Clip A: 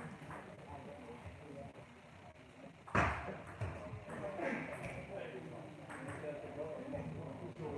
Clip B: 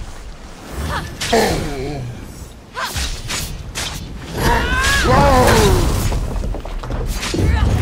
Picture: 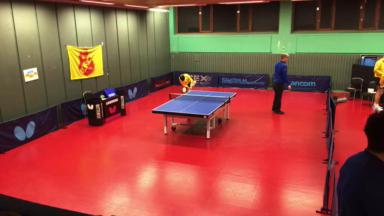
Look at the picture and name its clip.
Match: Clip A